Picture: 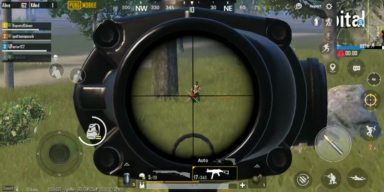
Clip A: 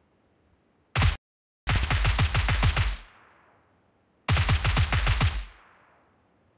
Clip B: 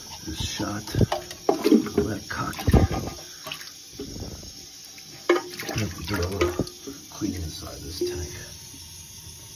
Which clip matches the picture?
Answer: A